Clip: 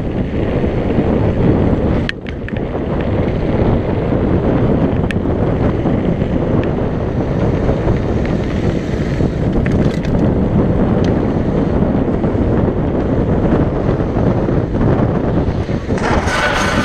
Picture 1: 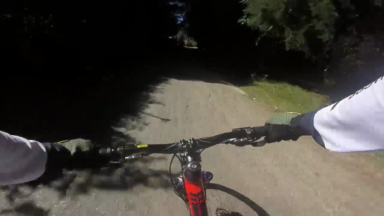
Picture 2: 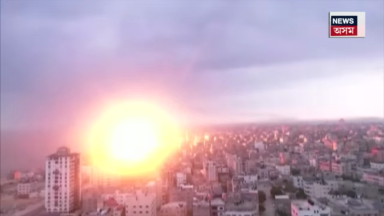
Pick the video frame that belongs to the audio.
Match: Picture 1